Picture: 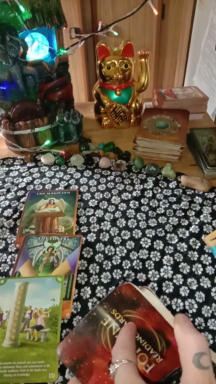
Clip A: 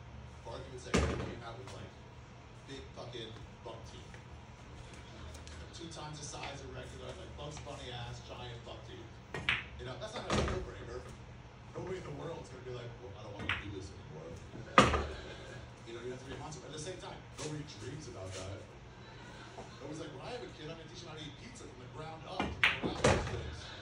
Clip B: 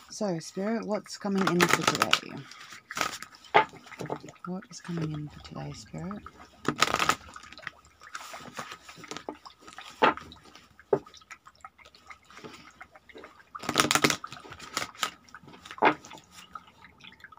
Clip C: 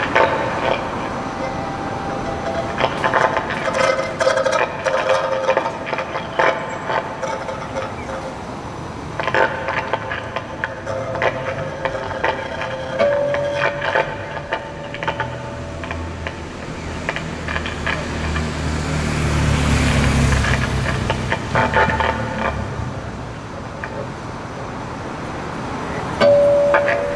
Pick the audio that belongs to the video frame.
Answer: B